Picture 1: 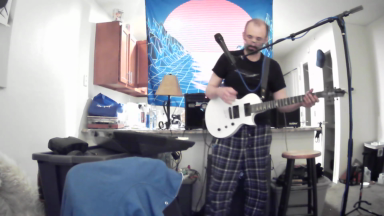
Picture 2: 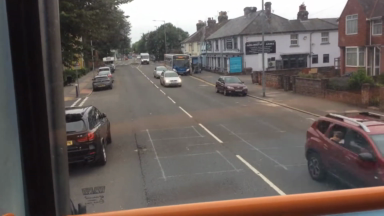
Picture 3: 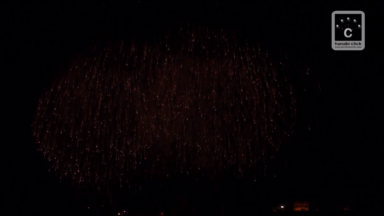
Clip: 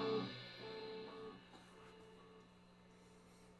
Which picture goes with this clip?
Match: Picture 1